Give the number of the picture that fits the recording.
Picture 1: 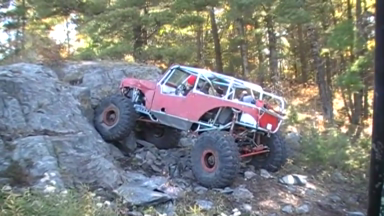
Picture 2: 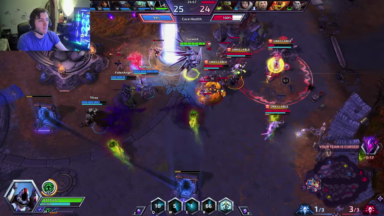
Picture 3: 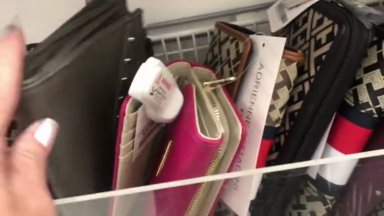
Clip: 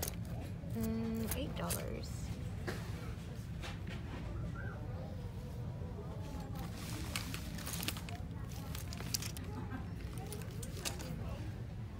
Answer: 3